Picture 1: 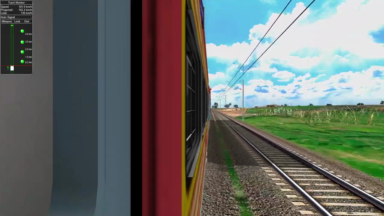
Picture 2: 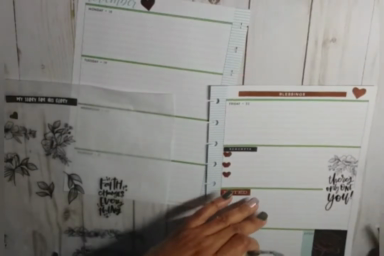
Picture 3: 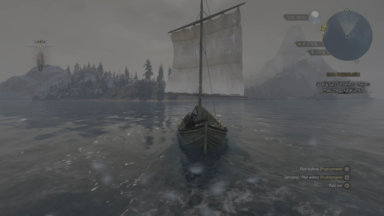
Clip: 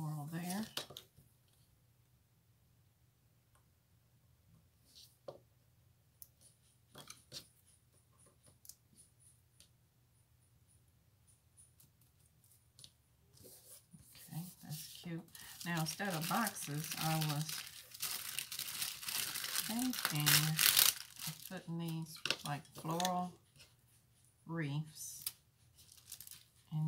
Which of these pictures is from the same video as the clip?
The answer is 2